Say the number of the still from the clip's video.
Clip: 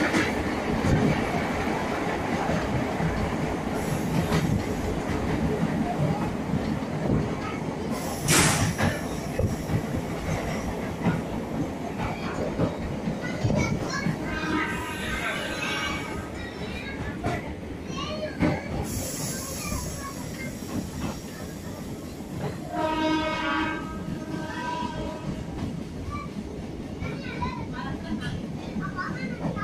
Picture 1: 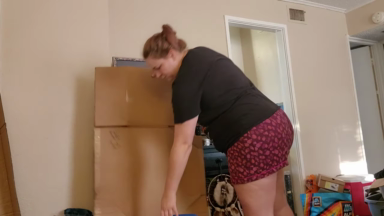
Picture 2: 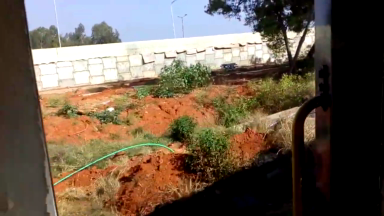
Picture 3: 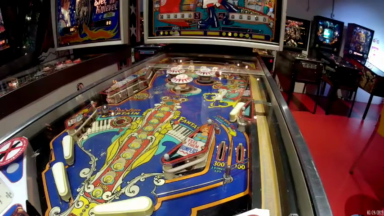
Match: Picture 2